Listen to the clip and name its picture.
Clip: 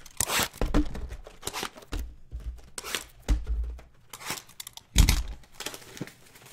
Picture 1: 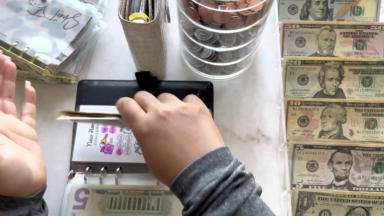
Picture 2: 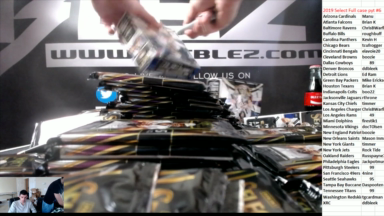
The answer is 2